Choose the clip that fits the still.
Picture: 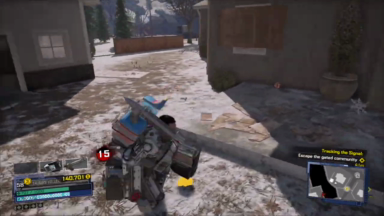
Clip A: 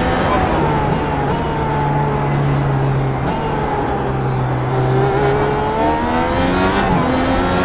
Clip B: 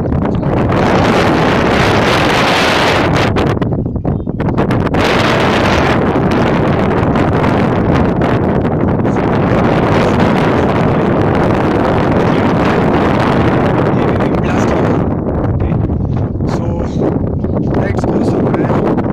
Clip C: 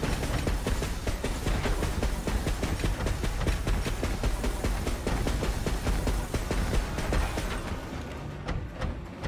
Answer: C